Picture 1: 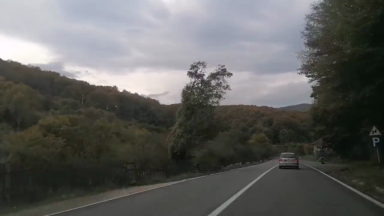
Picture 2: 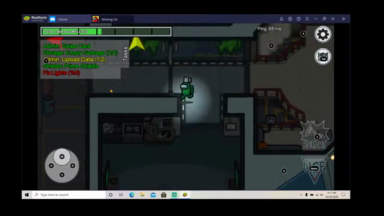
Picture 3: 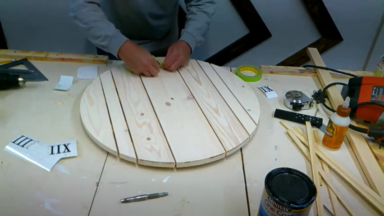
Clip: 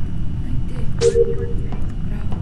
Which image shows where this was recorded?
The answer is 2